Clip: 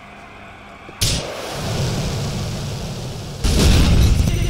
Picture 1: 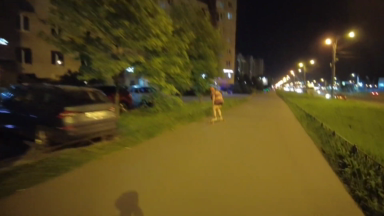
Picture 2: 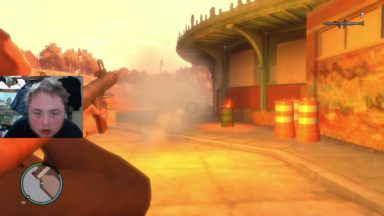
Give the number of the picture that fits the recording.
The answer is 2